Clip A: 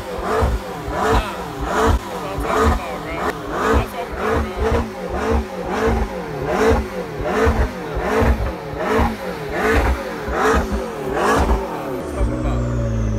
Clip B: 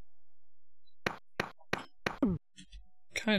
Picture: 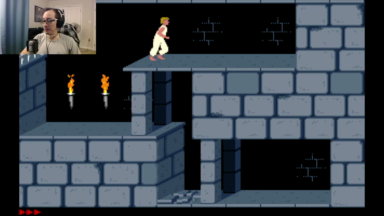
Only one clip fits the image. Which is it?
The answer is B